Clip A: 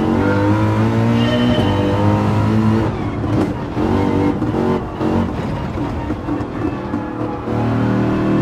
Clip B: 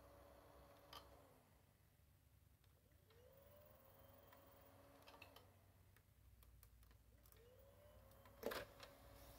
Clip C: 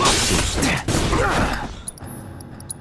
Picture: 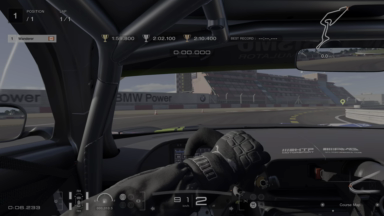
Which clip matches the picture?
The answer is A